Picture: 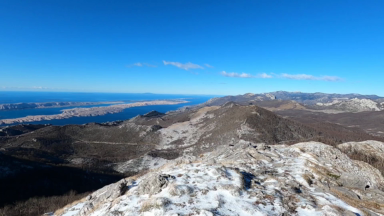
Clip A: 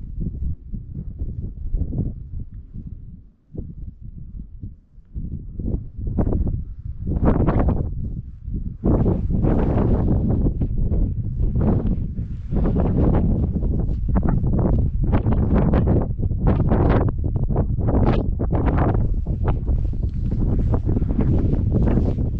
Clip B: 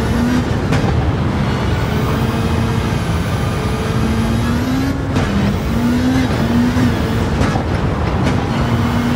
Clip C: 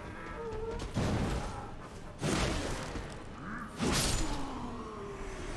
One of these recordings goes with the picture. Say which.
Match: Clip A